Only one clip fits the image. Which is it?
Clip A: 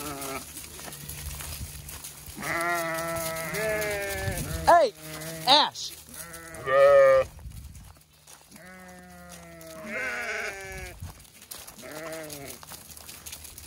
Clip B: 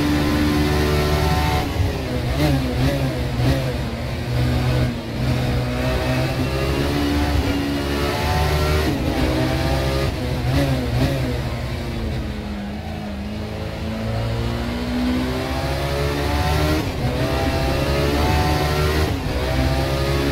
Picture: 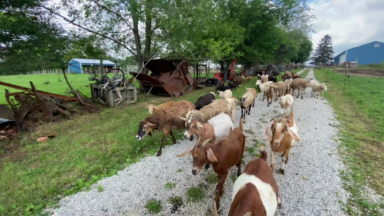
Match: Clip A